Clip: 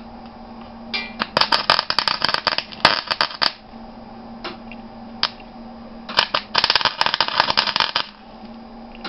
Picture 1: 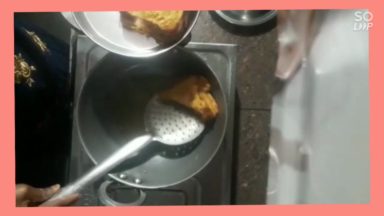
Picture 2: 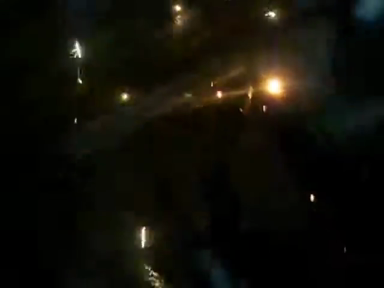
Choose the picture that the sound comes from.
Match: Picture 2